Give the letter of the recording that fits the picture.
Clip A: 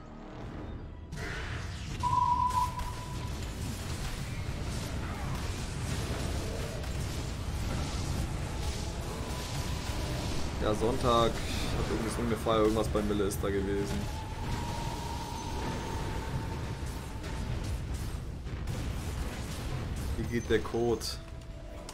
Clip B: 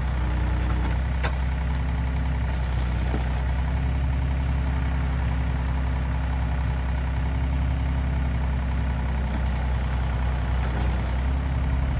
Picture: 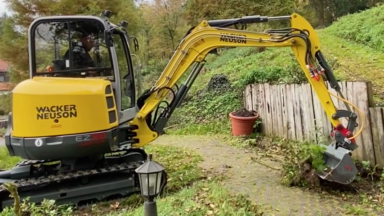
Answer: B